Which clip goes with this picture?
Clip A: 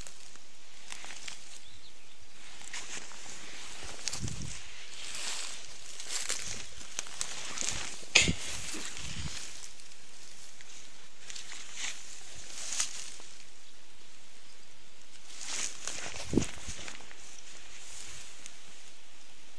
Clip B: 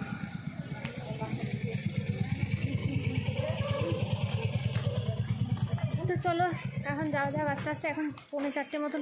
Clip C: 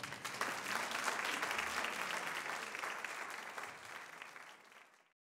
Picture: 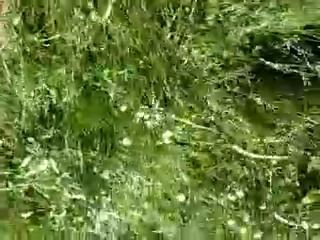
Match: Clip A